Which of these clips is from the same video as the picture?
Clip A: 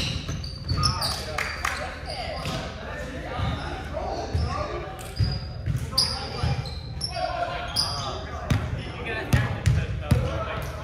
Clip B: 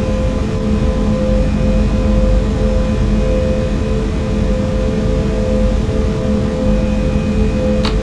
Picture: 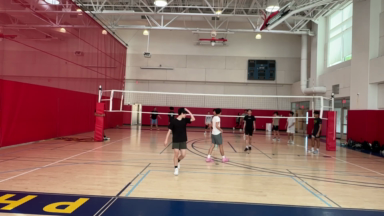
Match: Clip A